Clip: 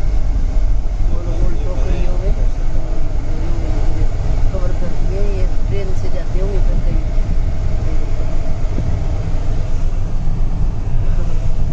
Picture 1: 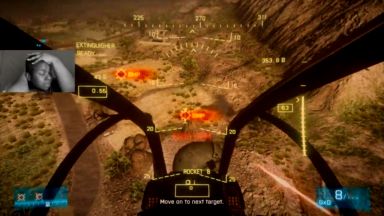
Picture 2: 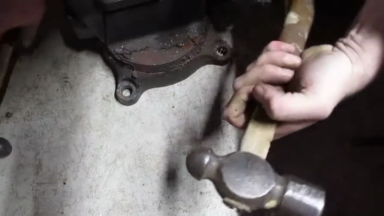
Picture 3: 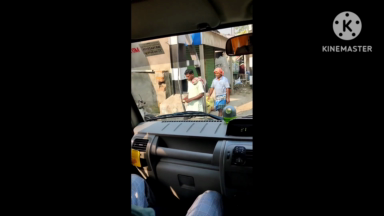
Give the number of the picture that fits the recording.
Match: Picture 3